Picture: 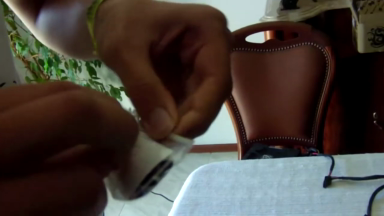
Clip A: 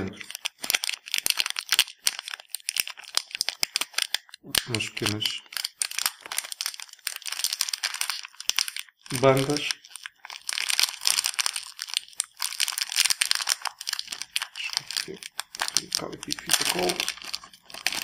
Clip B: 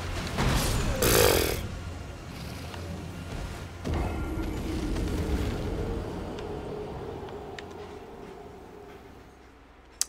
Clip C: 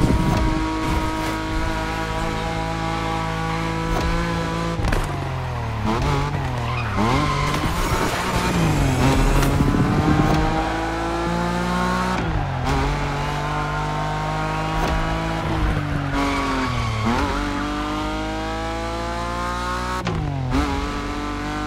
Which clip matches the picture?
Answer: A